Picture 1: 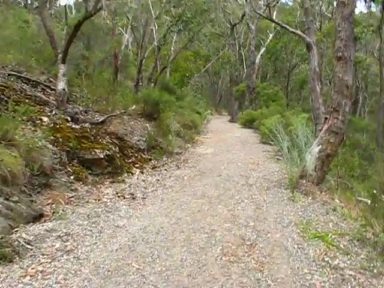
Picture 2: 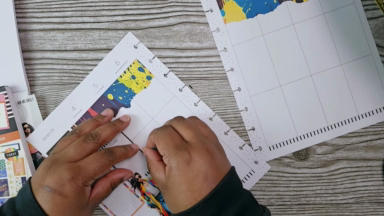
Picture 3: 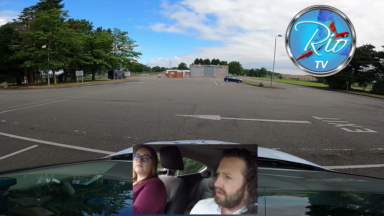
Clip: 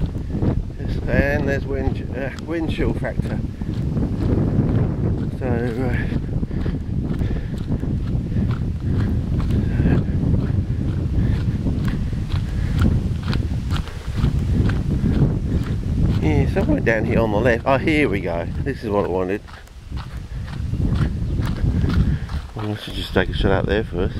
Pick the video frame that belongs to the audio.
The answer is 1